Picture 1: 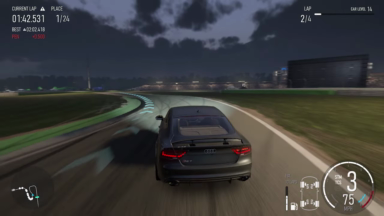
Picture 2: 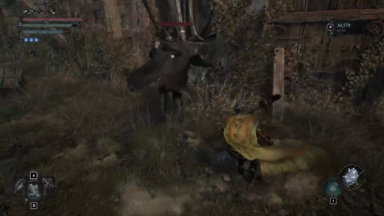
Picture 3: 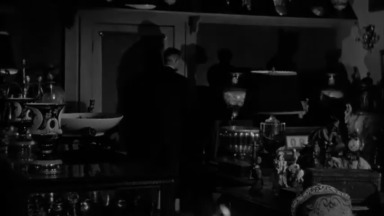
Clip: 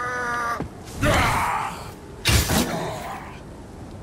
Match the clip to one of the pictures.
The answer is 2